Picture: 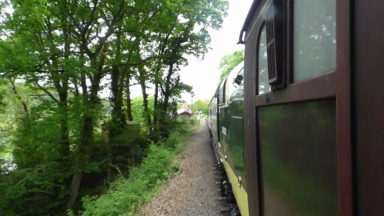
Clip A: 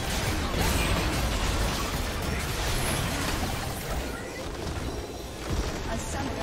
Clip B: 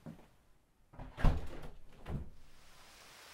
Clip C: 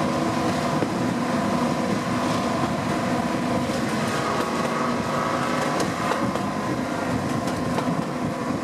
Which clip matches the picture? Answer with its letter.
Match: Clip C